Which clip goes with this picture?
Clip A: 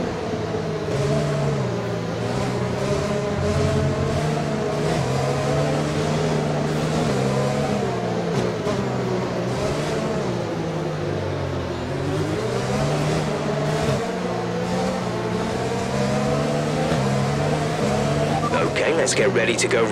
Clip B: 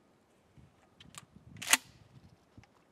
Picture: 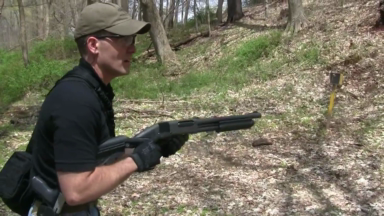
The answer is B